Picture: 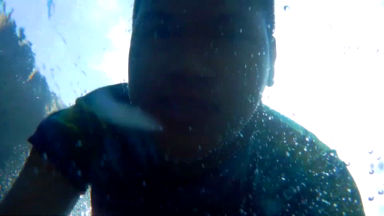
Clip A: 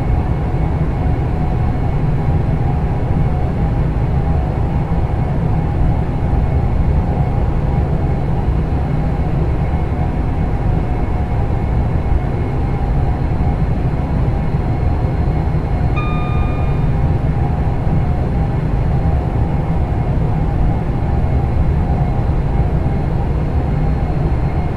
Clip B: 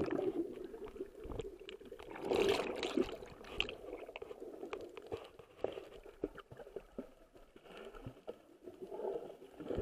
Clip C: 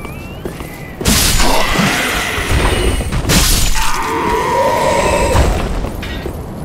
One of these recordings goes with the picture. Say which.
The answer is B